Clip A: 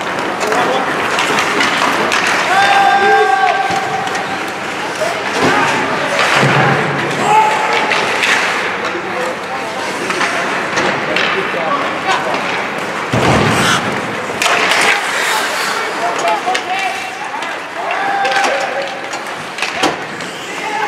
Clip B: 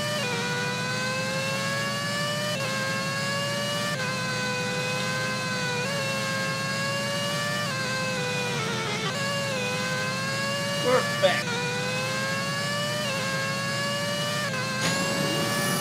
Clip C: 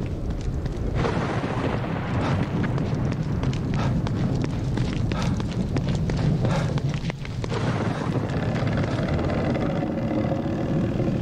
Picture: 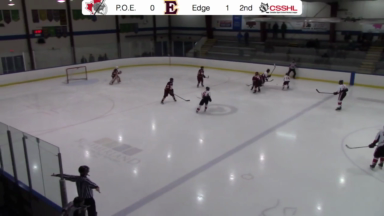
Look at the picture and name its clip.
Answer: A